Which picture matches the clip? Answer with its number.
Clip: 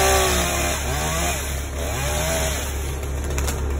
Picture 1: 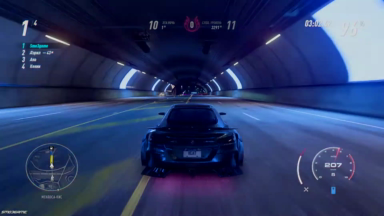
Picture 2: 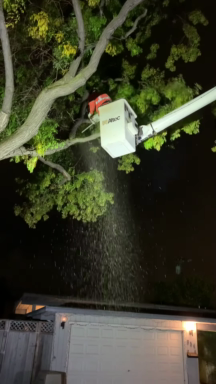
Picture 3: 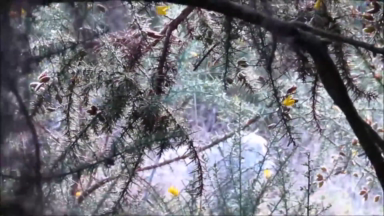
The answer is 2